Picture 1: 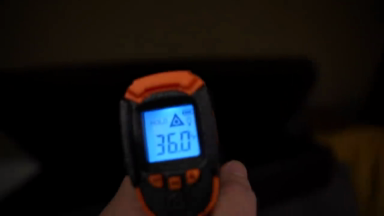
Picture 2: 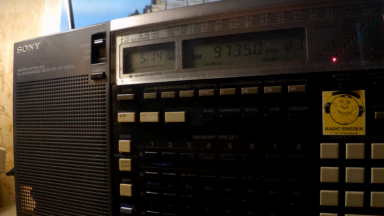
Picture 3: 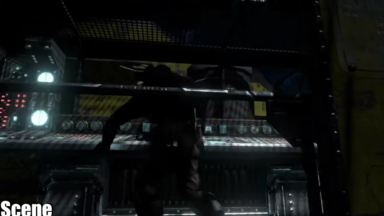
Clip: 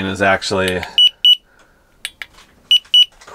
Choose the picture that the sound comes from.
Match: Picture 1